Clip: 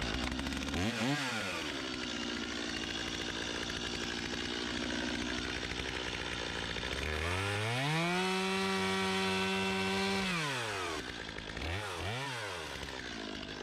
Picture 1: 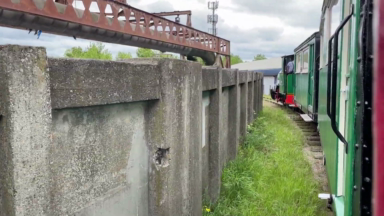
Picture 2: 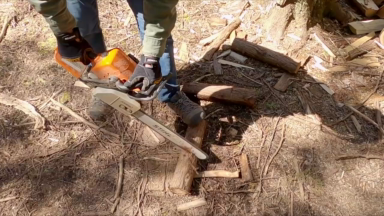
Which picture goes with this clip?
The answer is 2